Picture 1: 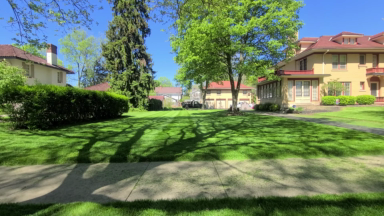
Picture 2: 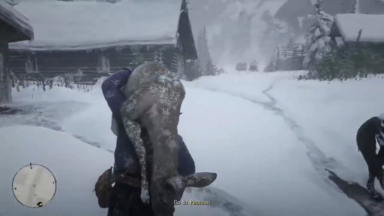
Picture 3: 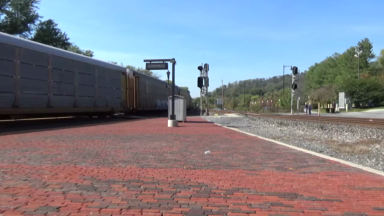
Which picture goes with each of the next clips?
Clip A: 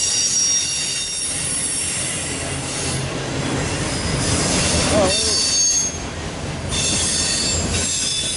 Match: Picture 3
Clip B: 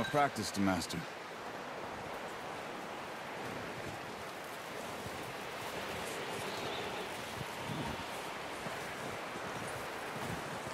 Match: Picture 2